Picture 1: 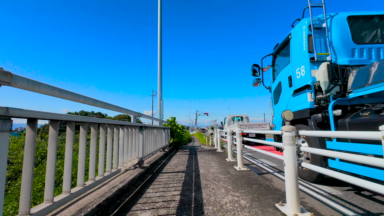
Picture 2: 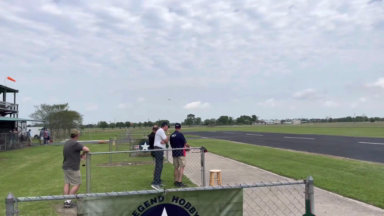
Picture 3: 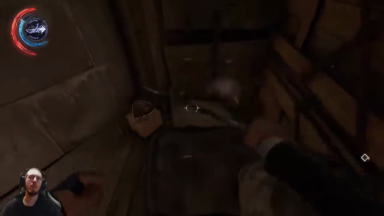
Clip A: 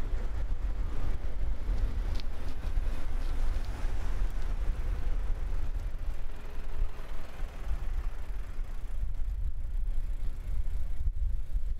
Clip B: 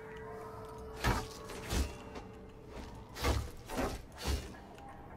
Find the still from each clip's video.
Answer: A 1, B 3